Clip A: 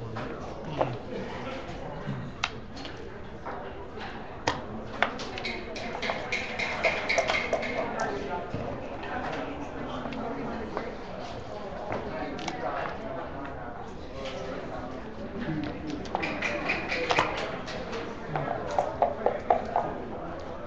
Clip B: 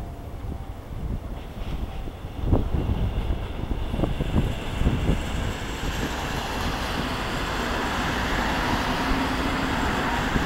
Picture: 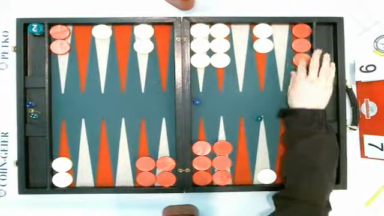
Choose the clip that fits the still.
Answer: A